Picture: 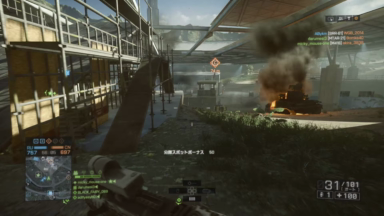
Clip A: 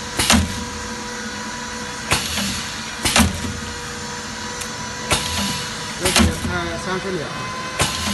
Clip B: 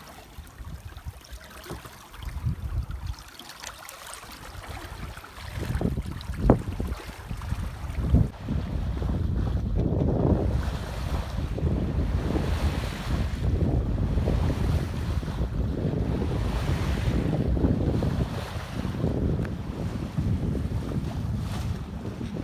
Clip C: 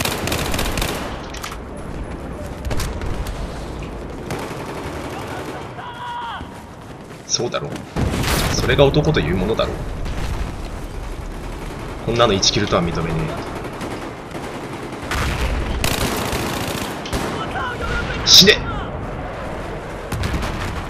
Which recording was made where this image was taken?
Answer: C